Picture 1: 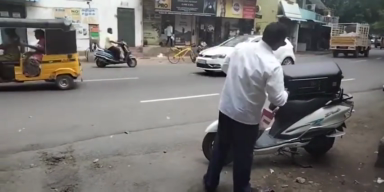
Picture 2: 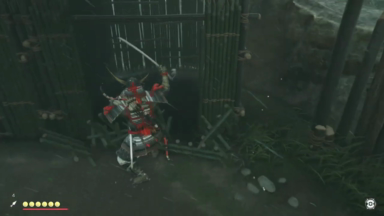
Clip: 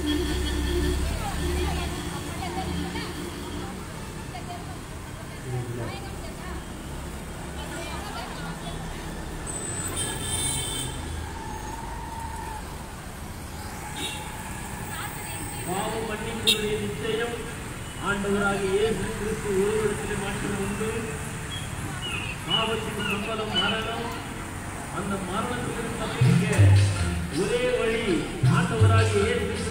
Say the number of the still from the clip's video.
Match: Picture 1